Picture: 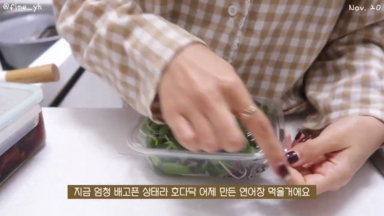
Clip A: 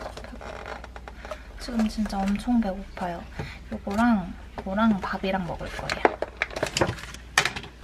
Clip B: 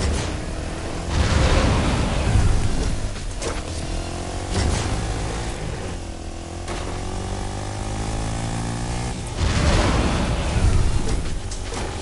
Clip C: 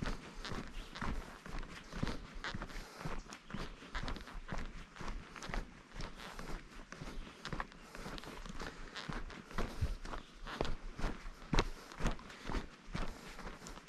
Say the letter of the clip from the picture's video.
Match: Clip A